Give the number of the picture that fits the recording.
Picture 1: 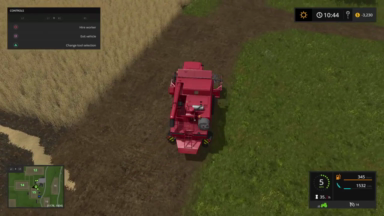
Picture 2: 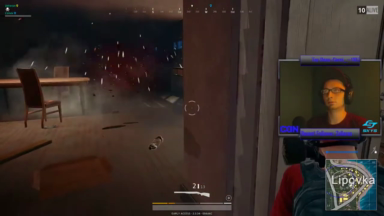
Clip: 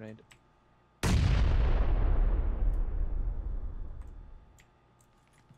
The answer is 2